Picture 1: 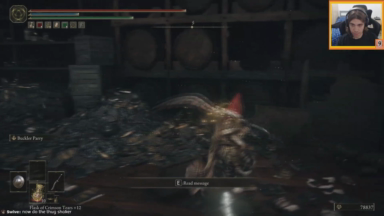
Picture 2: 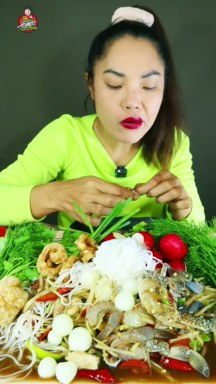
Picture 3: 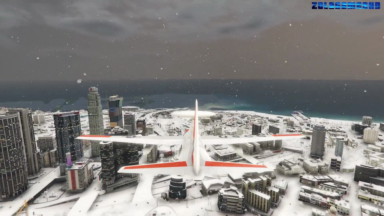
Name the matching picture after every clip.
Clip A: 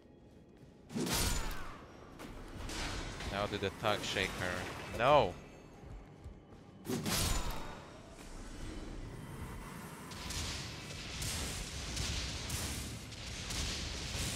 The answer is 1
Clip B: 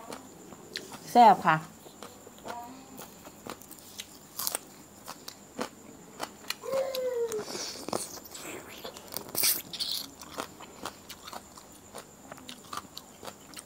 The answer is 2